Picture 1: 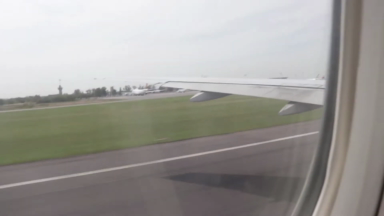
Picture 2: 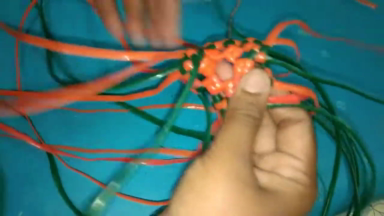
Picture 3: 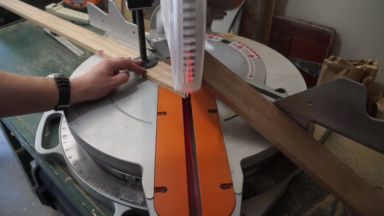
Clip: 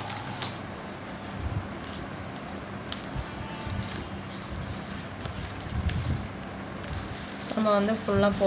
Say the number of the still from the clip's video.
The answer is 2